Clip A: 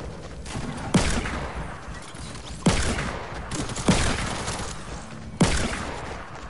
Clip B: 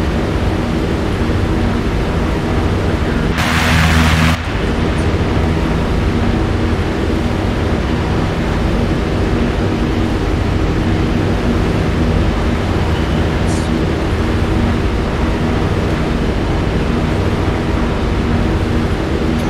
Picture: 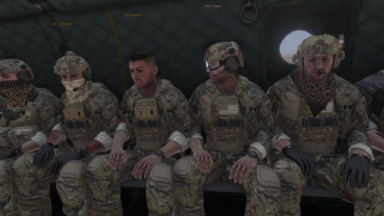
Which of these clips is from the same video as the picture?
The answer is B